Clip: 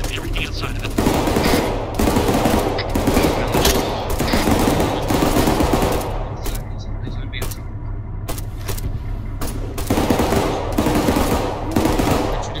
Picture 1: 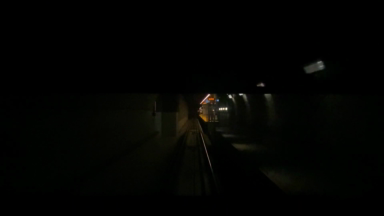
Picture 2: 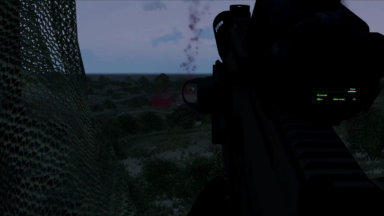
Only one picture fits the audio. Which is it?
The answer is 2